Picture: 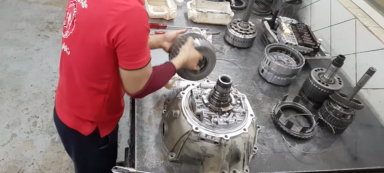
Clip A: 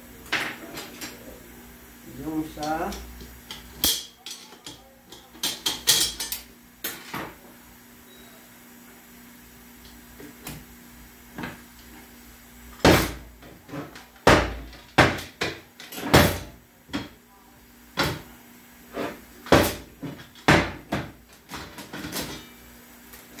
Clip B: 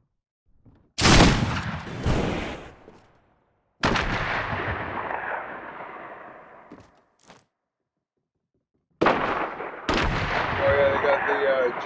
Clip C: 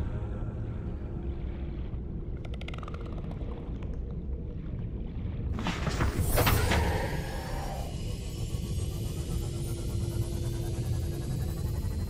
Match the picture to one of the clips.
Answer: A